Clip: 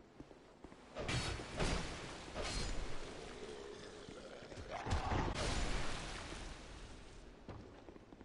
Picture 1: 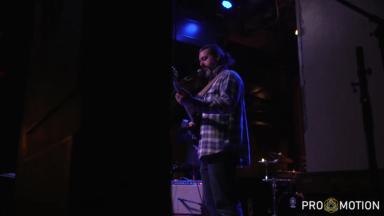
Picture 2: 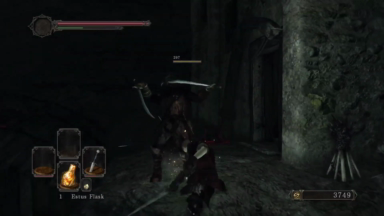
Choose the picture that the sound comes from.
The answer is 2